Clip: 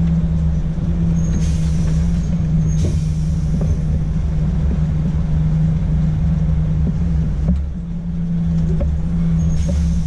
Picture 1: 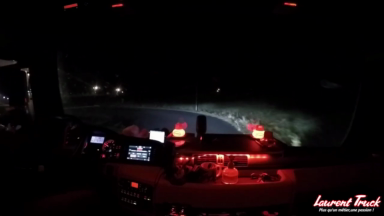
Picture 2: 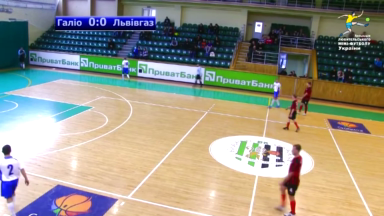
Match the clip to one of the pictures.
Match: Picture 1